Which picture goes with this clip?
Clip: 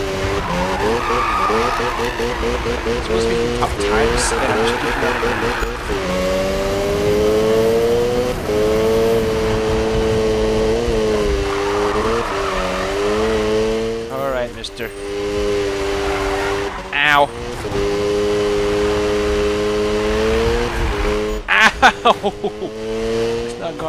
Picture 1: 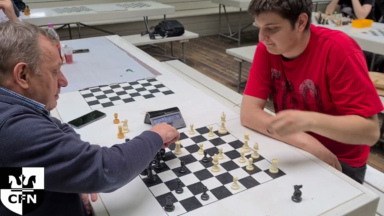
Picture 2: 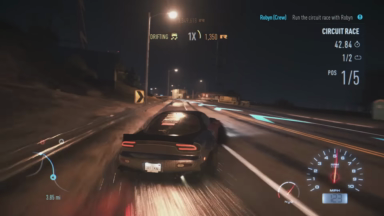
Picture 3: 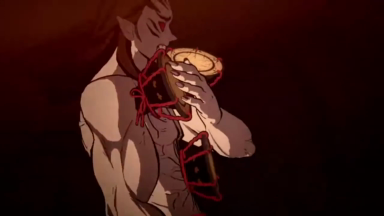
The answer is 2